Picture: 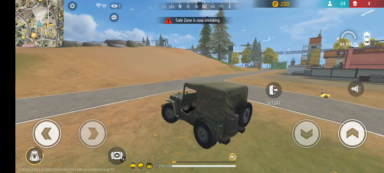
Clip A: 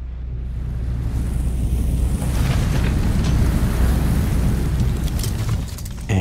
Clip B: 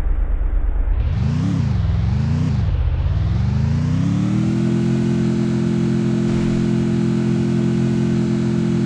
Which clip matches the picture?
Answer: B